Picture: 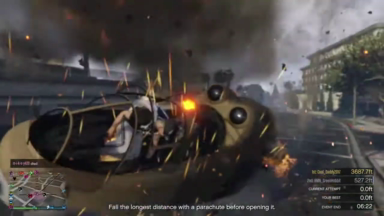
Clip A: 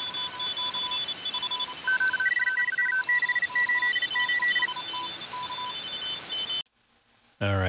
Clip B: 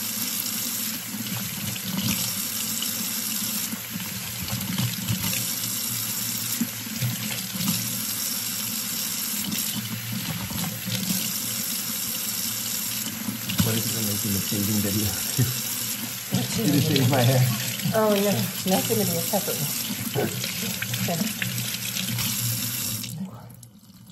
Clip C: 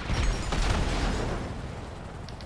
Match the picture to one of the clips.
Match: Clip C